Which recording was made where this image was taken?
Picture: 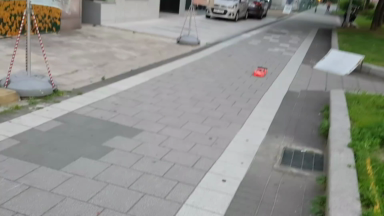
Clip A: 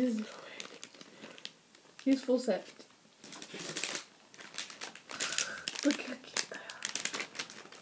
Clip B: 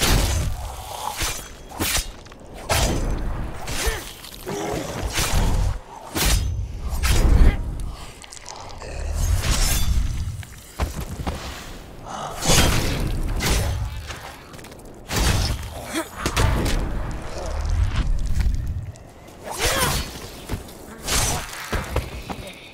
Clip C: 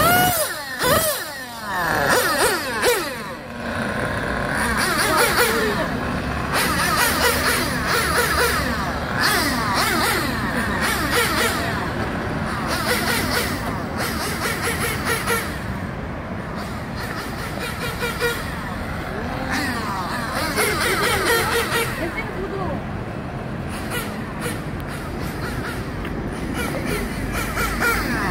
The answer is C